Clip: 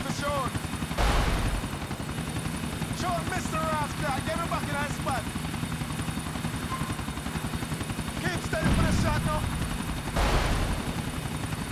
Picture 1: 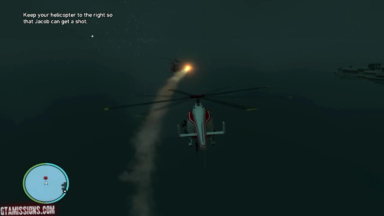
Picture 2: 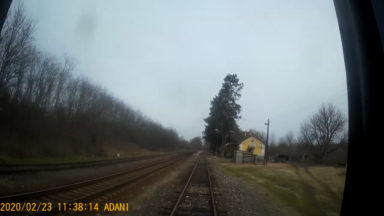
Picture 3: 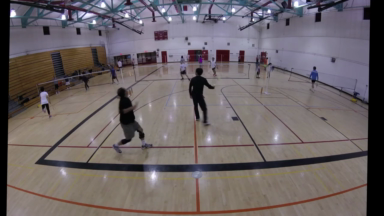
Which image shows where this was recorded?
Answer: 1